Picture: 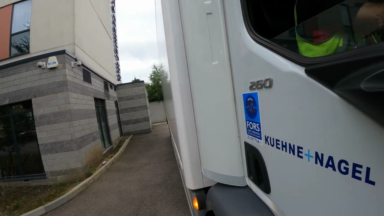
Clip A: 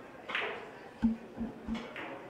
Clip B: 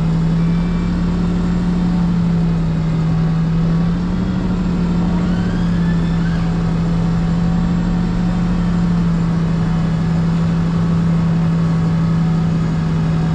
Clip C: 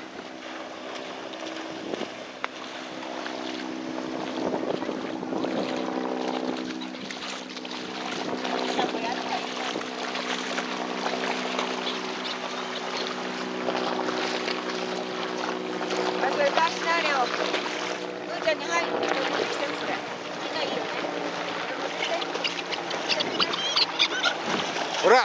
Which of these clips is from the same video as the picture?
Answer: B